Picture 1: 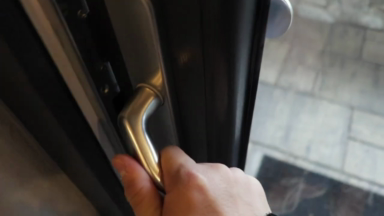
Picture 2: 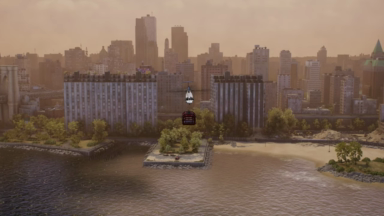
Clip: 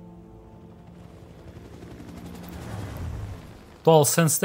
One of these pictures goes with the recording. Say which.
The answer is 2